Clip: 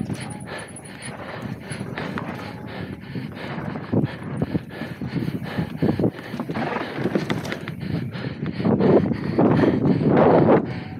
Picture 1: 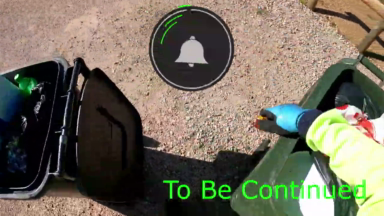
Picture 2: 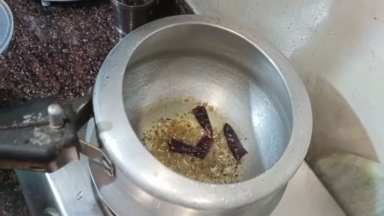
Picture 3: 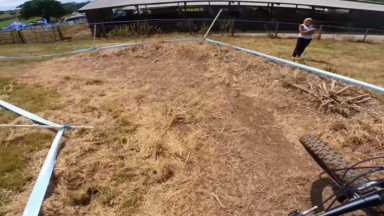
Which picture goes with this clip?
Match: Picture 3